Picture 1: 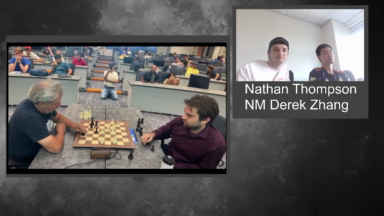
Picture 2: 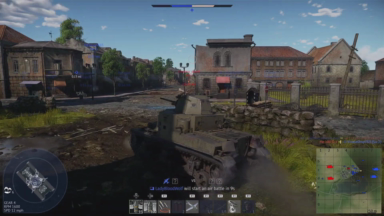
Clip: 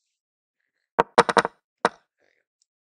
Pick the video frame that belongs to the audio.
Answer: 1